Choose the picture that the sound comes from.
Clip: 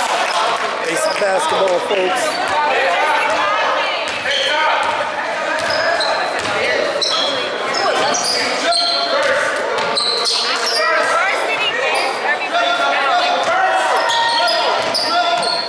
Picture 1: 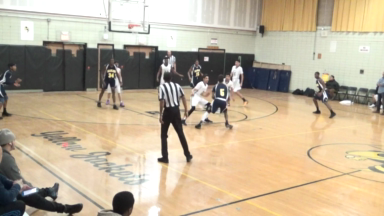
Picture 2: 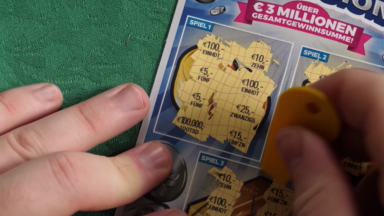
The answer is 1